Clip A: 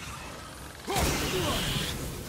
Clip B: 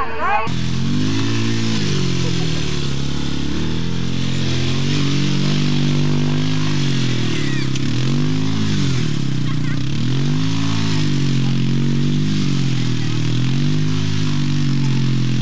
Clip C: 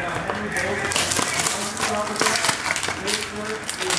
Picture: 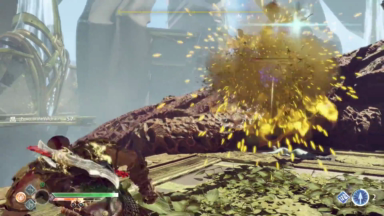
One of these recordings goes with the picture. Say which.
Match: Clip A